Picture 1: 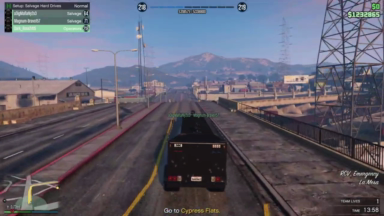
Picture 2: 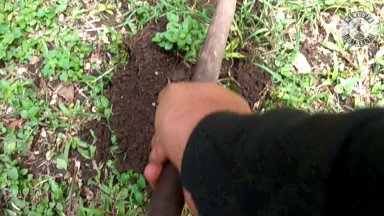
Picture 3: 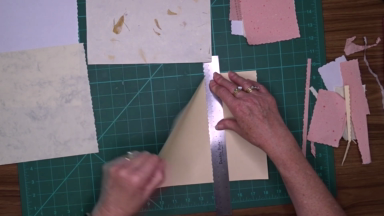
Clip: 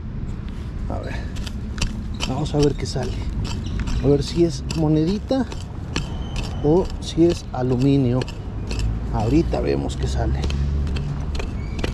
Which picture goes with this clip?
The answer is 2